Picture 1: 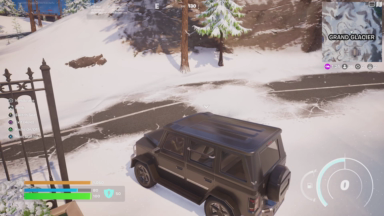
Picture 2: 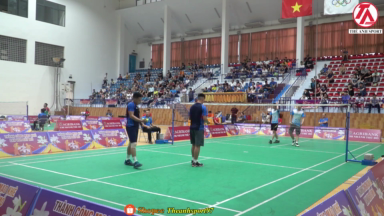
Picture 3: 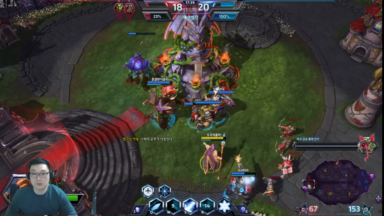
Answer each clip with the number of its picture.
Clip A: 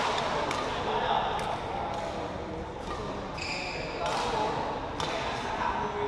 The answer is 2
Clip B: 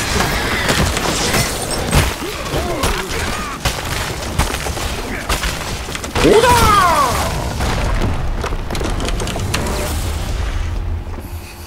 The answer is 3